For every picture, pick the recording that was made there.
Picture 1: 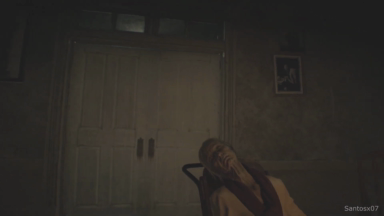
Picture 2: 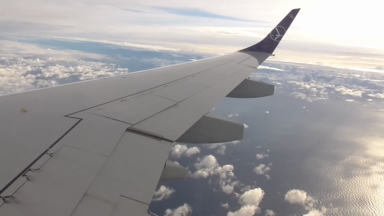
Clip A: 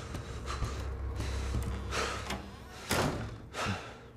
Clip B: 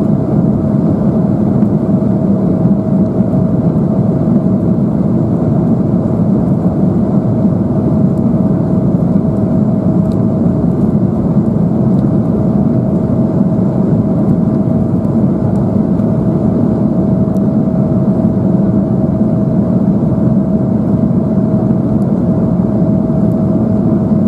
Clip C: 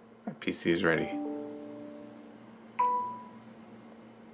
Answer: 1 A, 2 B